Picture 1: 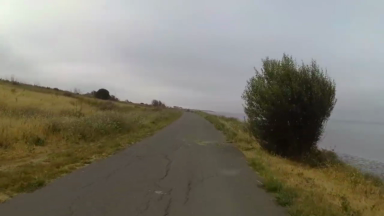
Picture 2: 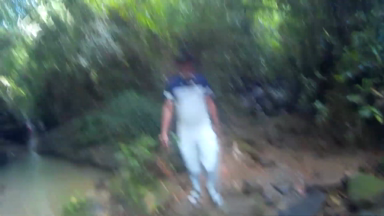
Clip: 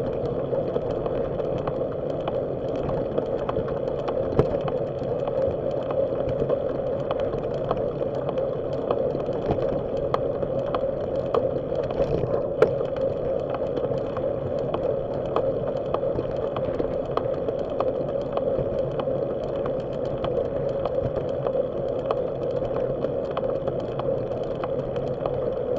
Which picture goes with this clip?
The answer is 1